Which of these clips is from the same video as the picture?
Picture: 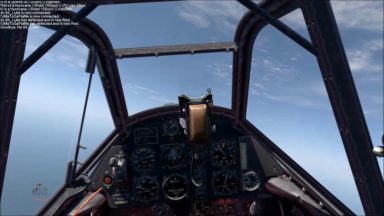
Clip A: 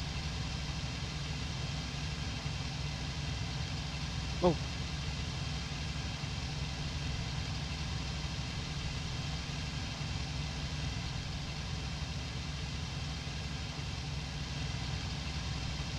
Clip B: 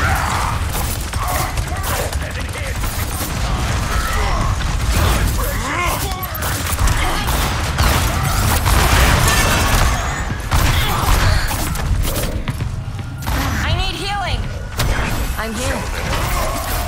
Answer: A